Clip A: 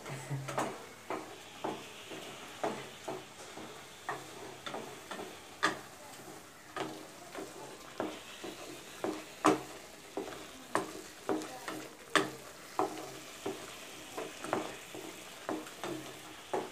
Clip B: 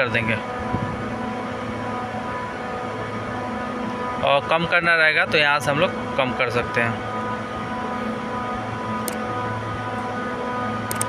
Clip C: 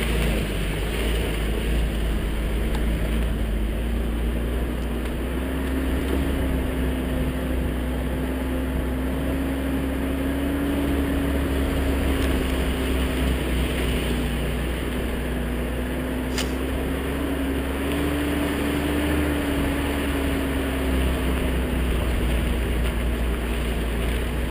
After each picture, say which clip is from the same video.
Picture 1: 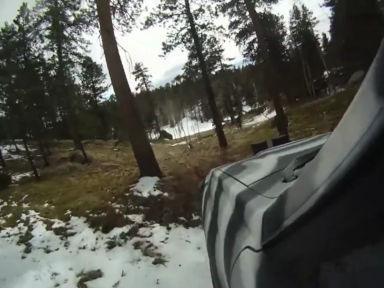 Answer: C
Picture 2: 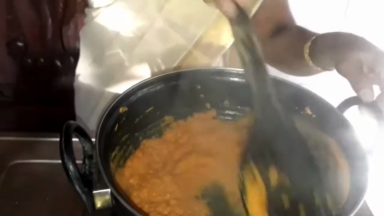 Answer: A